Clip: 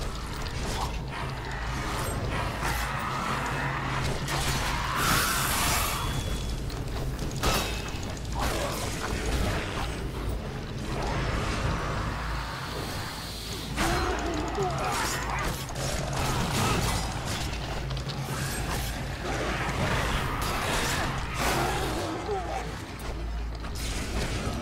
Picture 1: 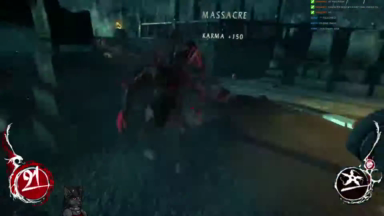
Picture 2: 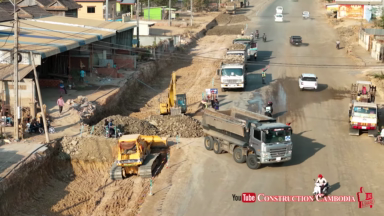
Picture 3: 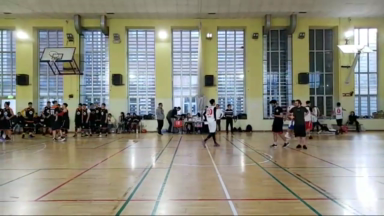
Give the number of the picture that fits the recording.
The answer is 1